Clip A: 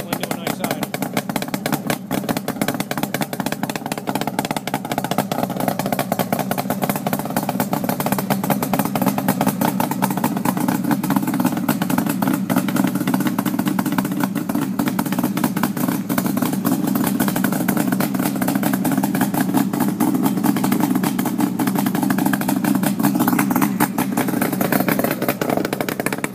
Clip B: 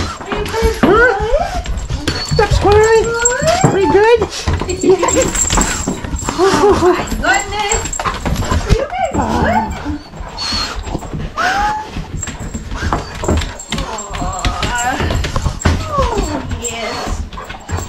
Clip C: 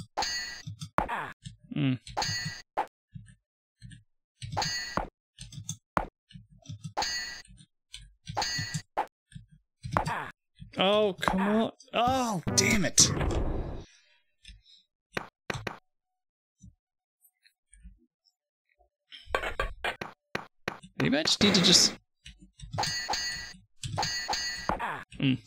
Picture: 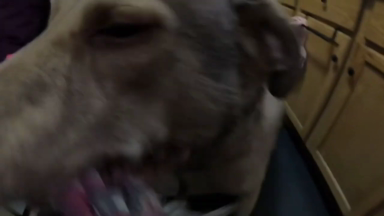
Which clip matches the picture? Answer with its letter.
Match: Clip B